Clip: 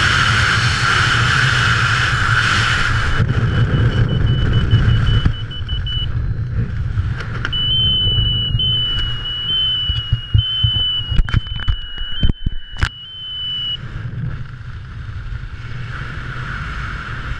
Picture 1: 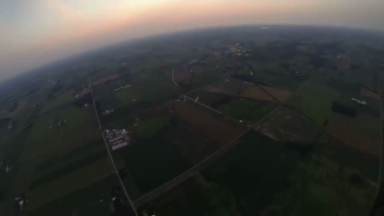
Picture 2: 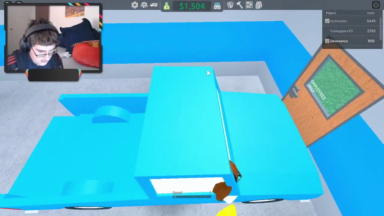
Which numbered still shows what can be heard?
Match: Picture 1